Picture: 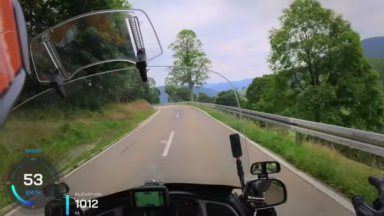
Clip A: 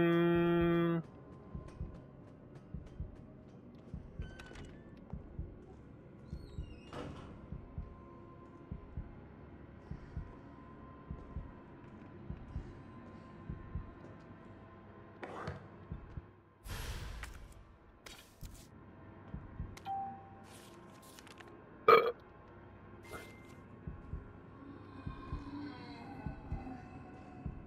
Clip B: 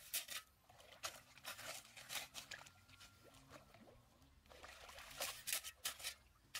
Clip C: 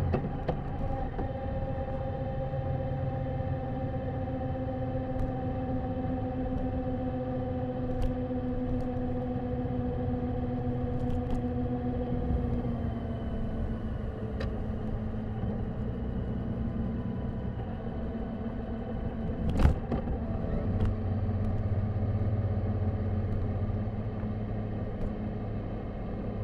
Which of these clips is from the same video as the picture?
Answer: C